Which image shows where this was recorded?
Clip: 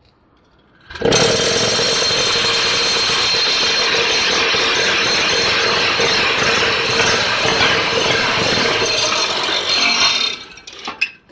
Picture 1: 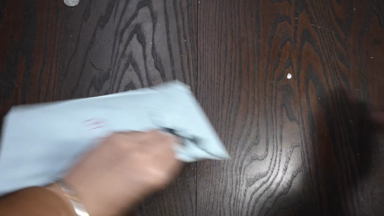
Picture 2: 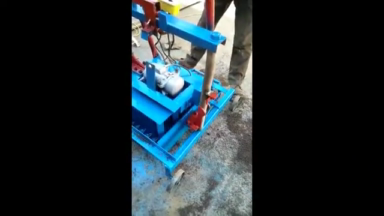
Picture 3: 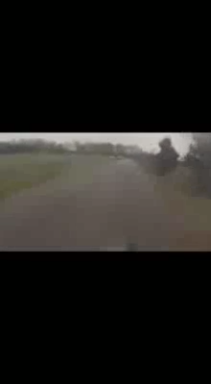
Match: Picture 2